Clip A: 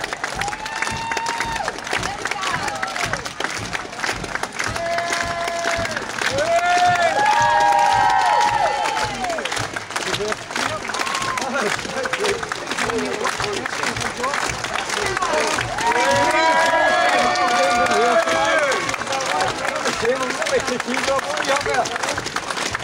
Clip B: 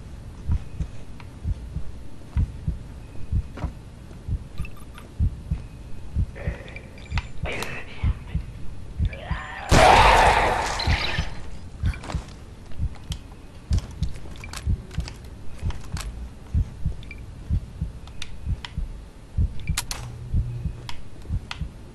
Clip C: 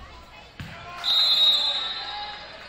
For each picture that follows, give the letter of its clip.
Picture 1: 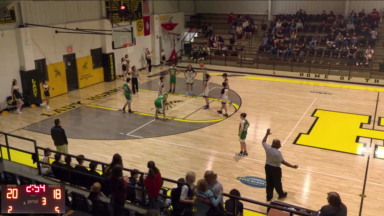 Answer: C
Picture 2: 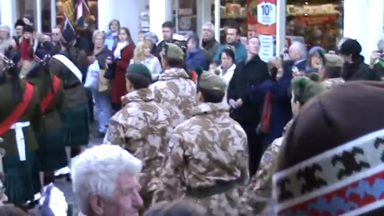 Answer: A